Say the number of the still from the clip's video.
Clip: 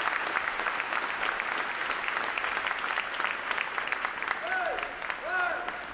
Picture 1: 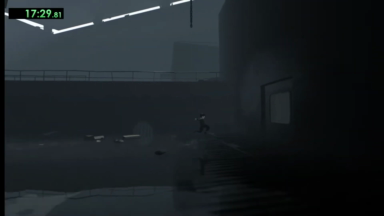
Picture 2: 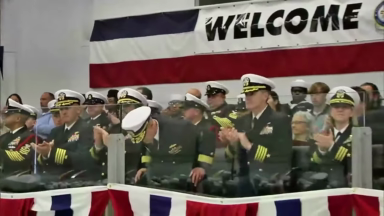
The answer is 2